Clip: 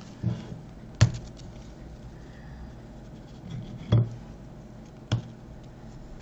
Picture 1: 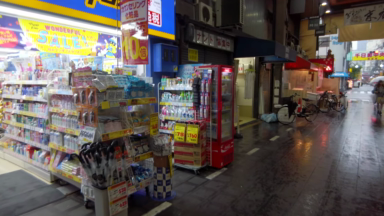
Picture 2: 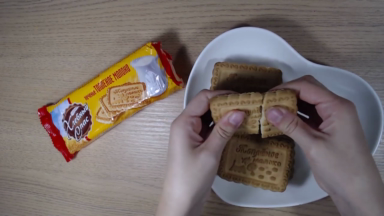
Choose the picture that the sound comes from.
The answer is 2